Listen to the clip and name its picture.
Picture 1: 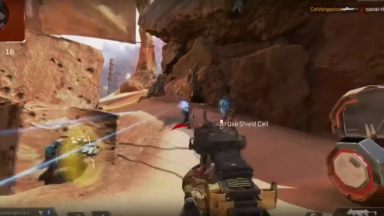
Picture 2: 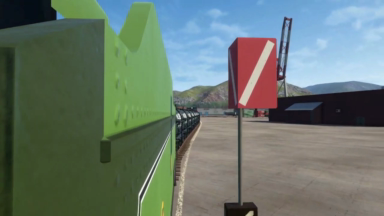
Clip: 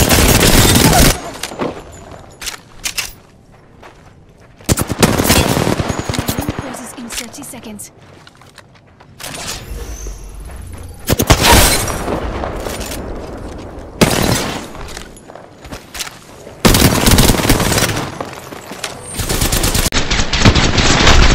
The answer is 1